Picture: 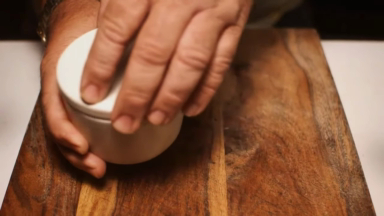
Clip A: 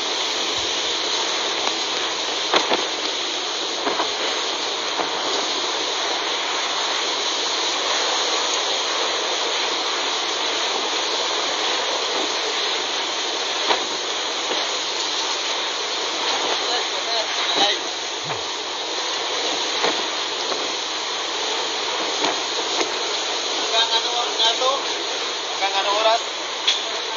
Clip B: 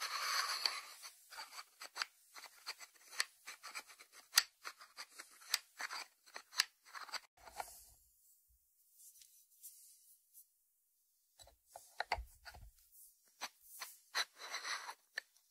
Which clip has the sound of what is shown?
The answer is B